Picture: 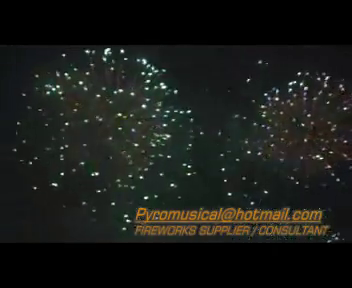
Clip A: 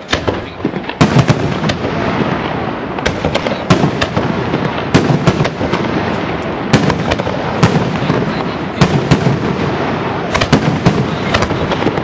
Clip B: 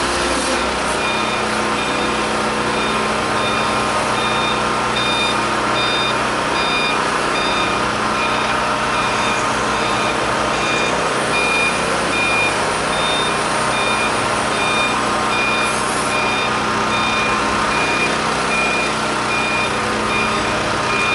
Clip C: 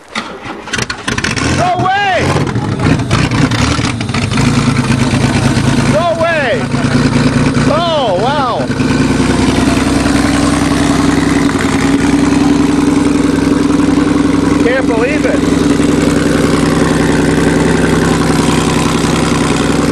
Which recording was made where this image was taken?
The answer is A